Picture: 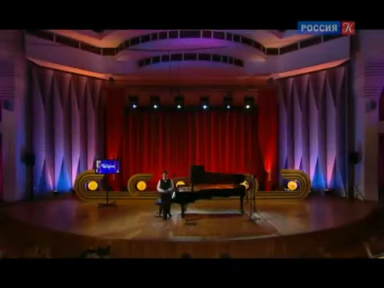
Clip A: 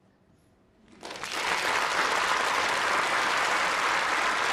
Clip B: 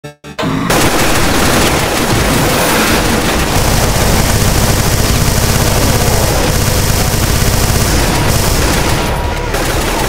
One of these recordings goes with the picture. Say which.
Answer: A